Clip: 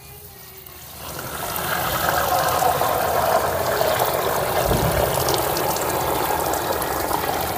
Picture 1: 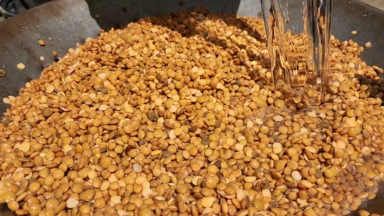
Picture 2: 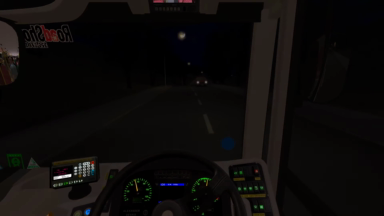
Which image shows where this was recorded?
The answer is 1